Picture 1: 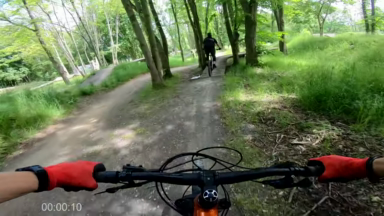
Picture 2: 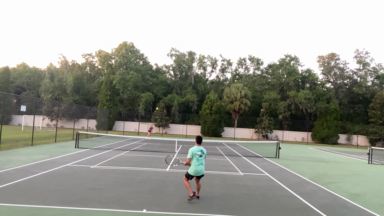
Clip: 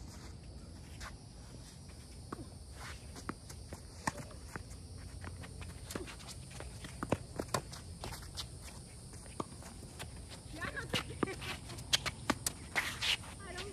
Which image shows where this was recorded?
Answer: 2